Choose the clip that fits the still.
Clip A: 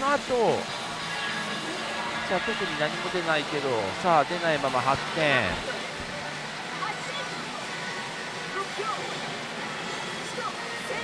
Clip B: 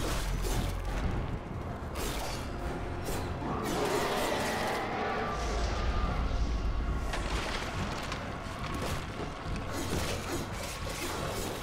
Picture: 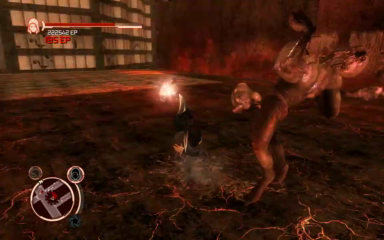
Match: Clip B